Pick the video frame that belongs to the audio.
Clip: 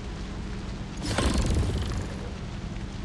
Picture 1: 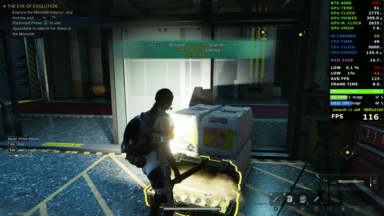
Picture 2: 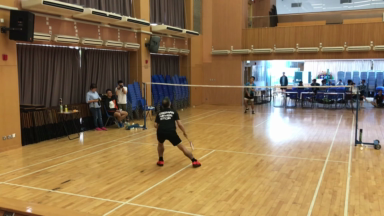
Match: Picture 1